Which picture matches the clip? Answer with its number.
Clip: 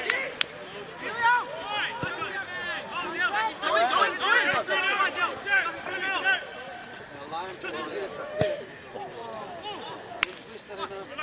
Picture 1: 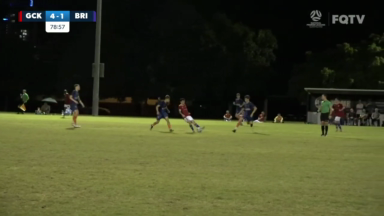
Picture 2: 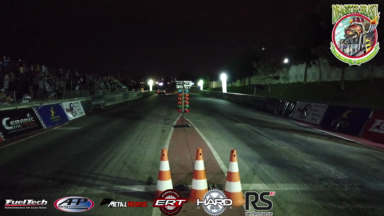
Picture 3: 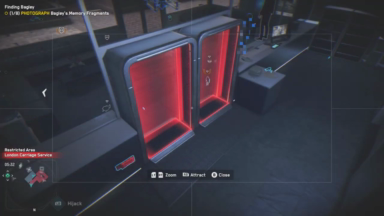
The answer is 1